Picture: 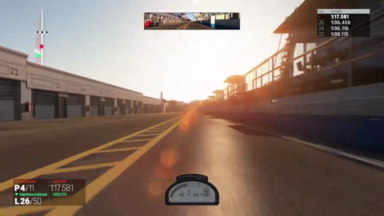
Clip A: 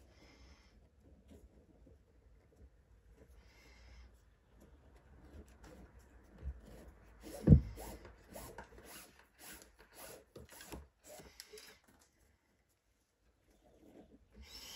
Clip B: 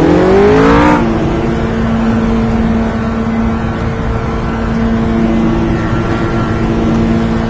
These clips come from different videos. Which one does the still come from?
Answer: B